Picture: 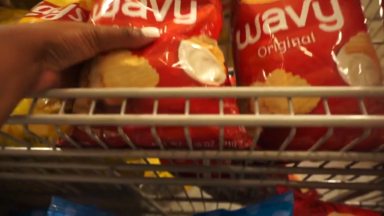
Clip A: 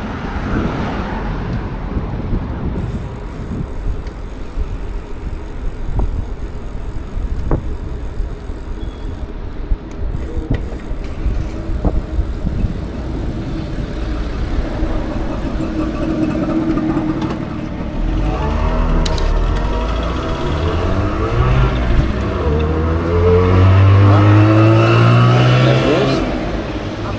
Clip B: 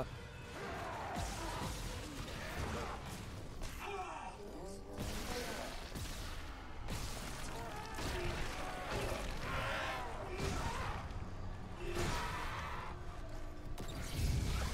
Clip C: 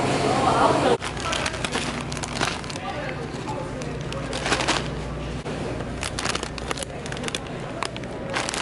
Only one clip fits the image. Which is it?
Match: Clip C